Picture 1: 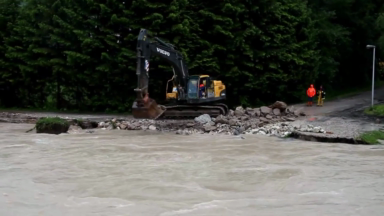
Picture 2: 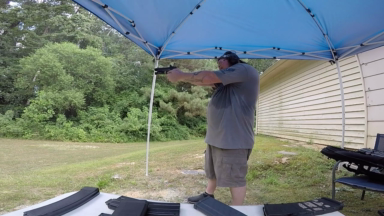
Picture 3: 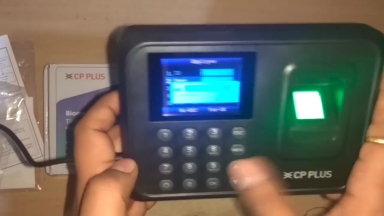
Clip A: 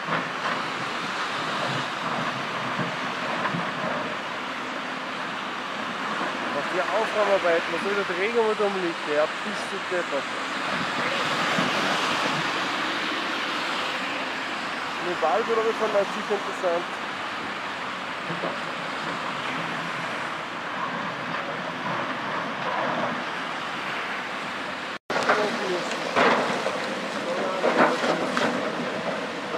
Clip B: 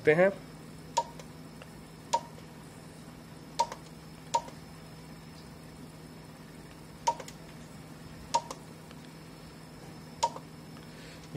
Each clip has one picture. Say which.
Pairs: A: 1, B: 3